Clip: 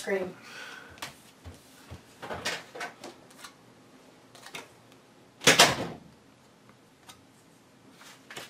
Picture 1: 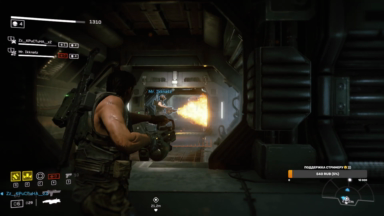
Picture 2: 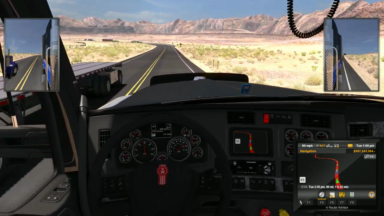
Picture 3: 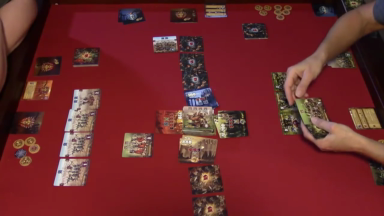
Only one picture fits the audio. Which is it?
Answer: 3